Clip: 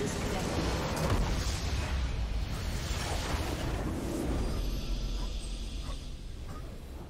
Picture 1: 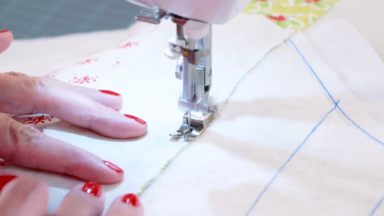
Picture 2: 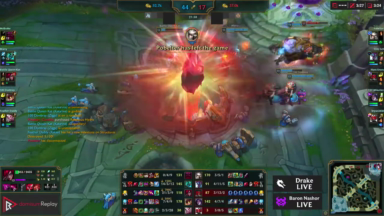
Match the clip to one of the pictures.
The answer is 2